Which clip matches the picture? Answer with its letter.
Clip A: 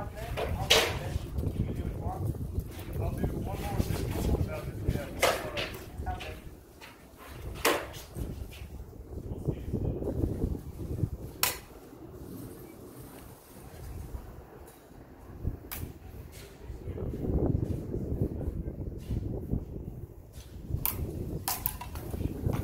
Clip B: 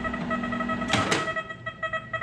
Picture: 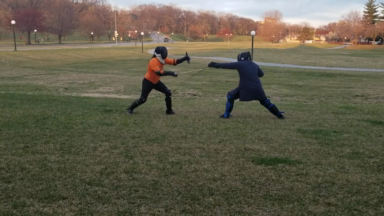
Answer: A